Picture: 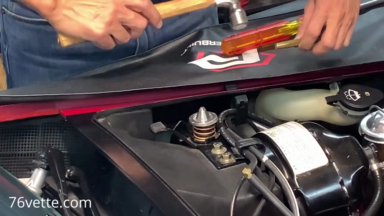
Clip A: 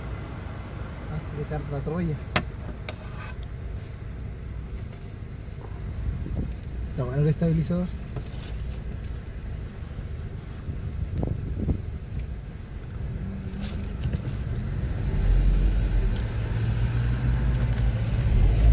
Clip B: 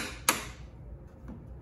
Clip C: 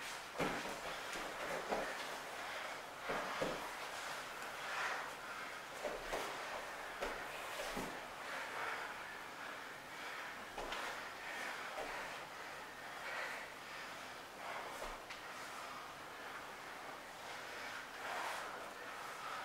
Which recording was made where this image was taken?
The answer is B